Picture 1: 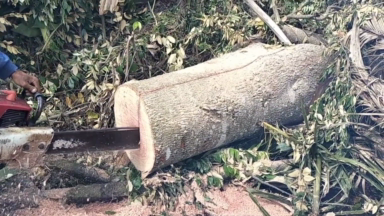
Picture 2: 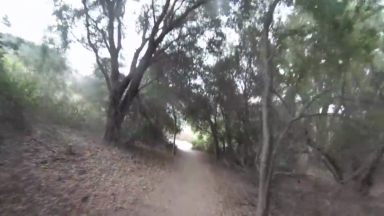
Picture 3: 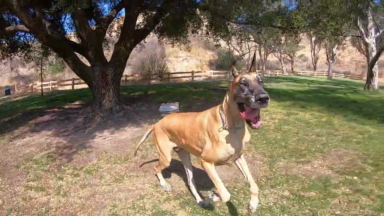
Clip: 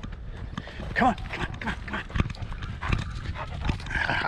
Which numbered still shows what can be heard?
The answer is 3